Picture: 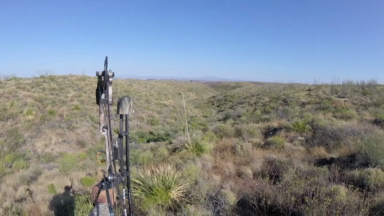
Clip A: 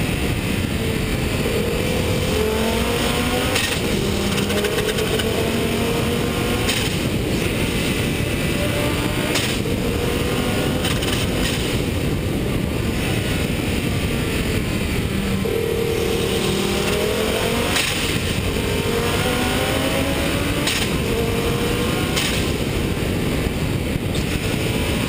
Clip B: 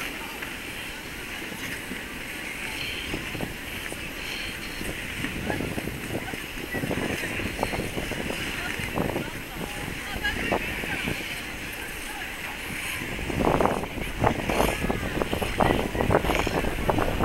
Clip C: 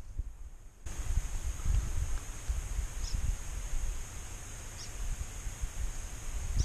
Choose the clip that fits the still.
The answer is C